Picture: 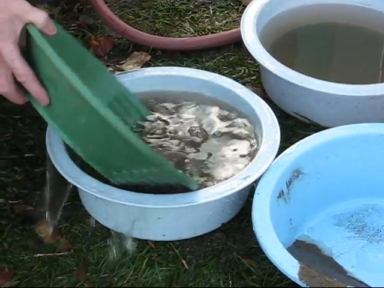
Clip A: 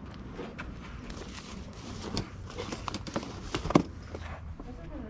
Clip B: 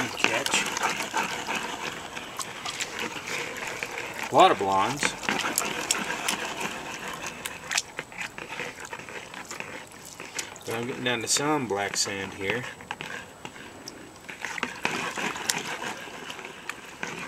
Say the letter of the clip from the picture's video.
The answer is B